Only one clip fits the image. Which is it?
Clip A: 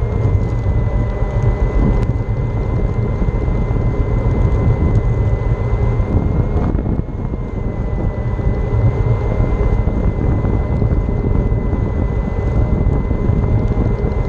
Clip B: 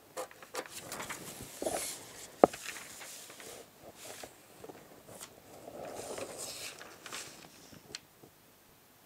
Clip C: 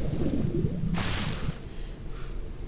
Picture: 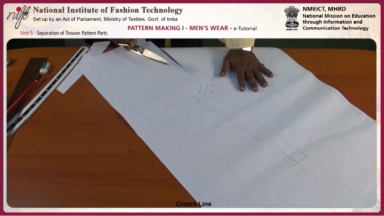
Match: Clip B